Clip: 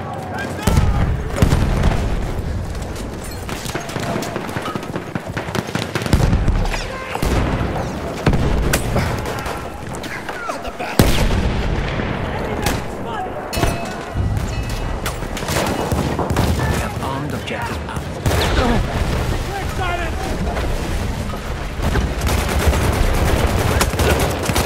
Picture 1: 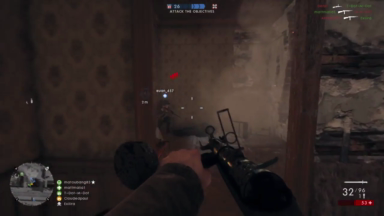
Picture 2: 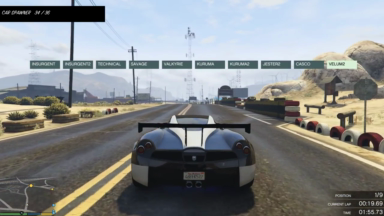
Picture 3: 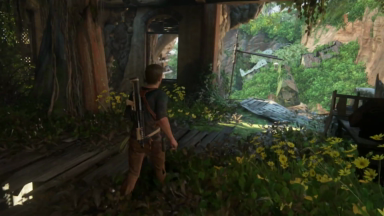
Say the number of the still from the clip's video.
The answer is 1